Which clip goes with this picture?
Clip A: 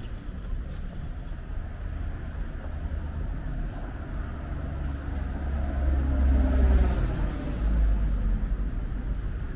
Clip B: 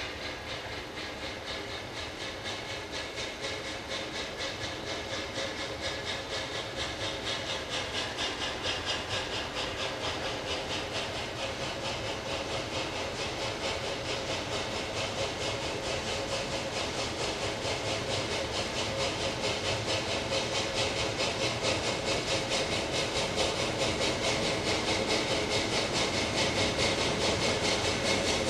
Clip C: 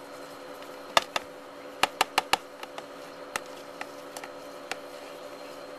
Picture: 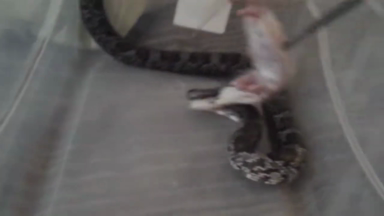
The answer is C